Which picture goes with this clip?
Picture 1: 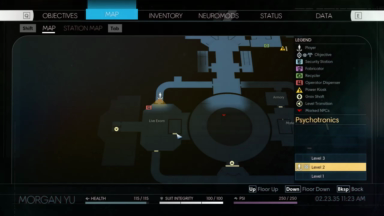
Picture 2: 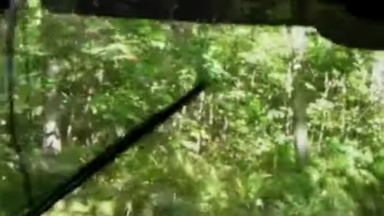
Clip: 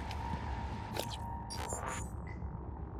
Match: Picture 1